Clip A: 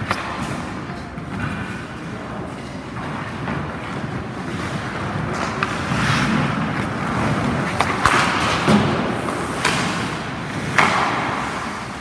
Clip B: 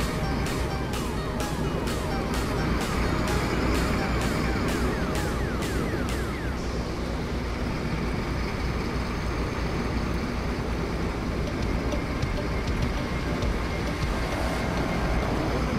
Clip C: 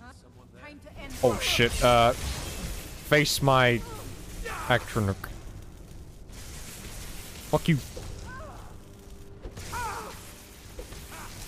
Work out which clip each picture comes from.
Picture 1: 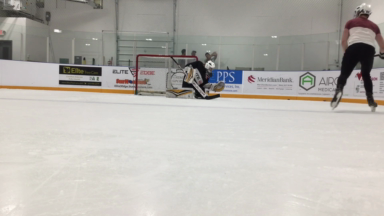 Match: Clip A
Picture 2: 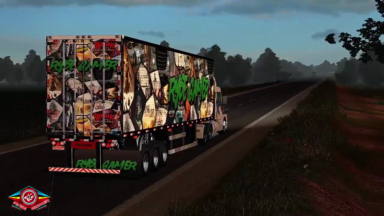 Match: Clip B